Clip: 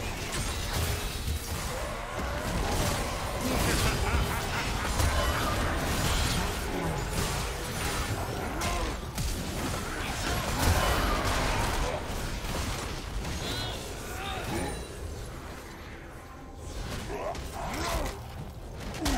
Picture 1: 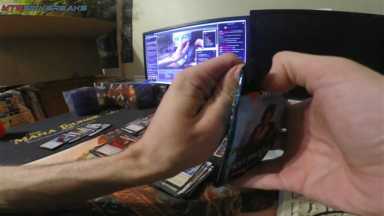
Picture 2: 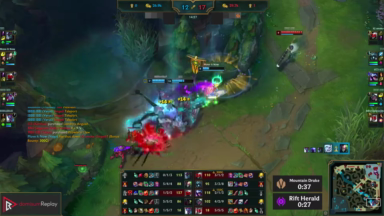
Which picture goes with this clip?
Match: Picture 2